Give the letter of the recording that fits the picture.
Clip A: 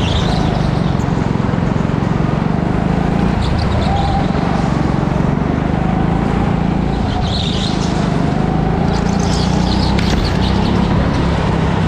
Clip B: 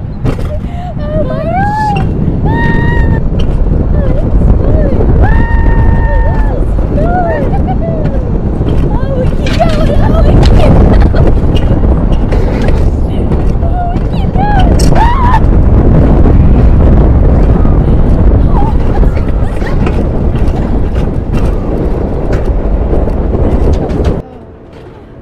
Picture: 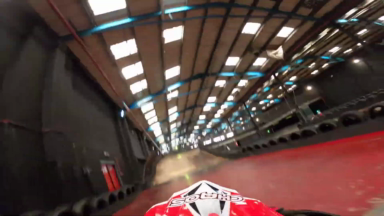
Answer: A